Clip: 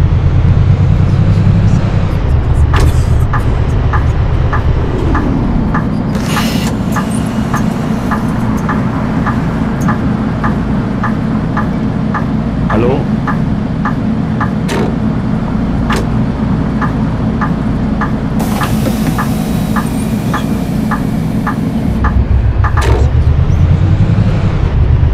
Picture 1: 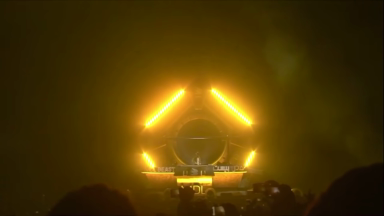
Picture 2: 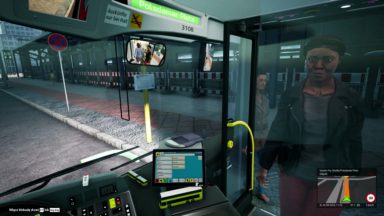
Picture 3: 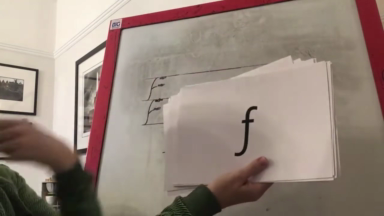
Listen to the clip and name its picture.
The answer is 2